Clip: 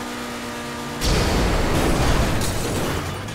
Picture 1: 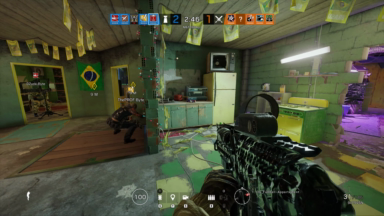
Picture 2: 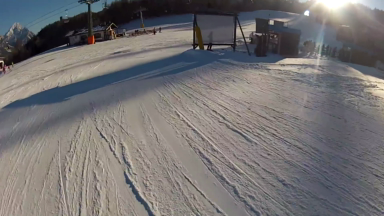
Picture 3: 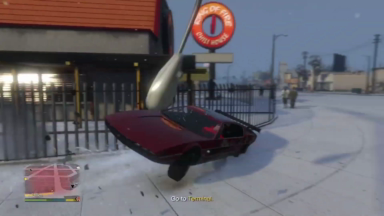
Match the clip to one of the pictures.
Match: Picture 3